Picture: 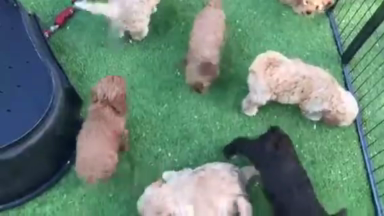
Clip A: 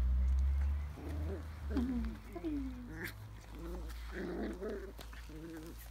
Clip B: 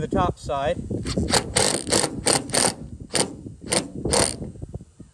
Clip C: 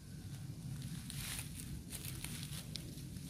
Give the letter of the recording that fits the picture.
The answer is A